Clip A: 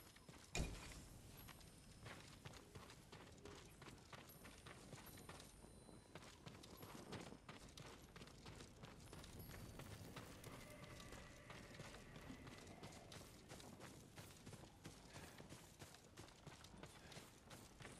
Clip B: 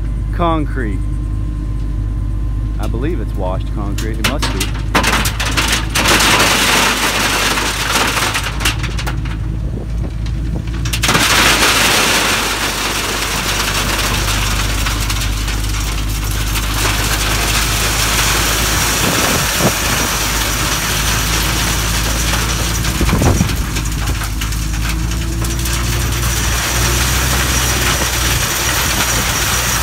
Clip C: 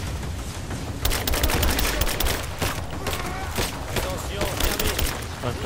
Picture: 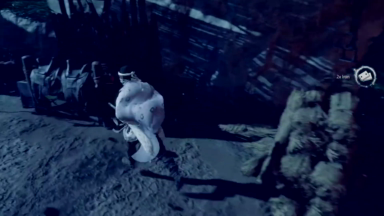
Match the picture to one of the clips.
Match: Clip A